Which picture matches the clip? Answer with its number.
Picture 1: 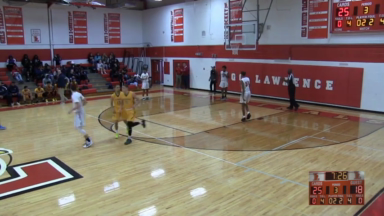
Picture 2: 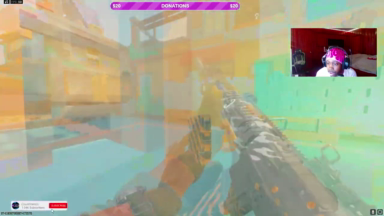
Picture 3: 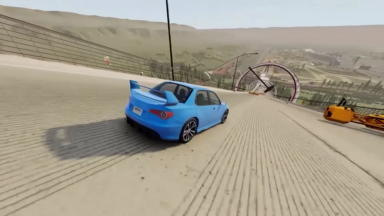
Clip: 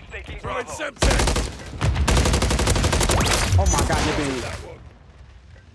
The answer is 2